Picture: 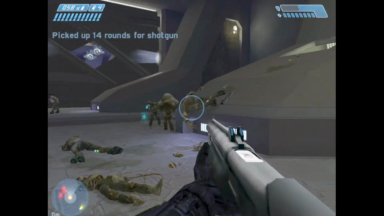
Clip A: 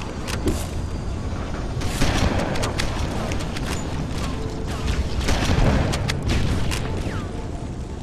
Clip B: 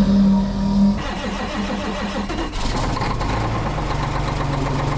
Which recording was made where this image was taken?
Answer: A